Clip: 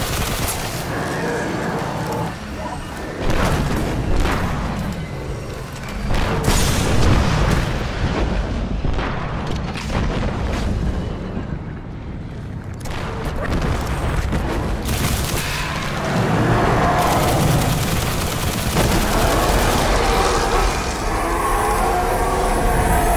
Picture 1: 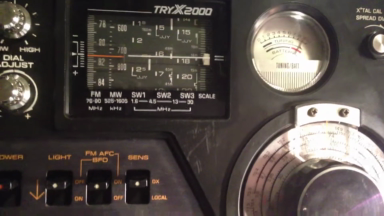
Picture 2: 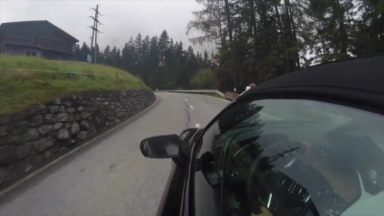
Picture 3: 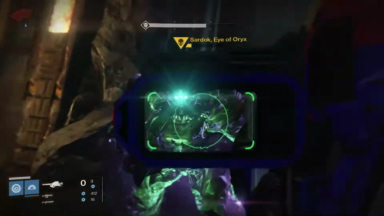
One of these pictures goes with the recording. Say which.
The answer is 3